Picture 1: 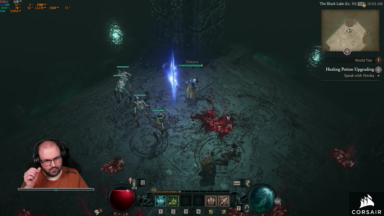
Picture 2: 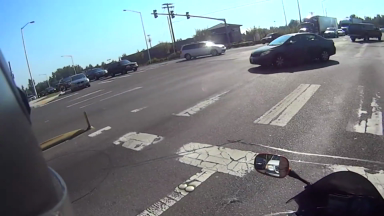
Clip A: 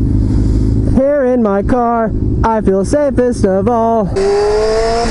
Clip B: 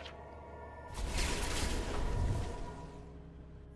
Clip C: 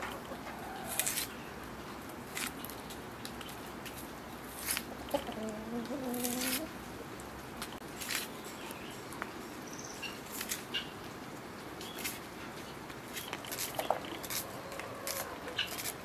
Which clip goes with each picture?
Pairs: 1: B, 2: A